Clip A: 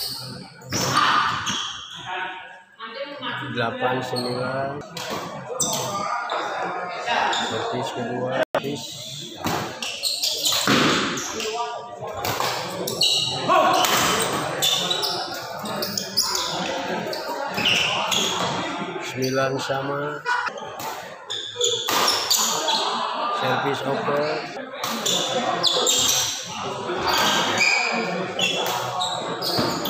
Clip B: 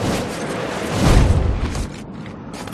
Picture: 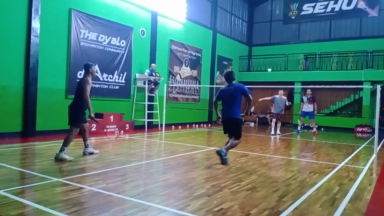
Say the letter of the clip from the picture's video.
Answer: A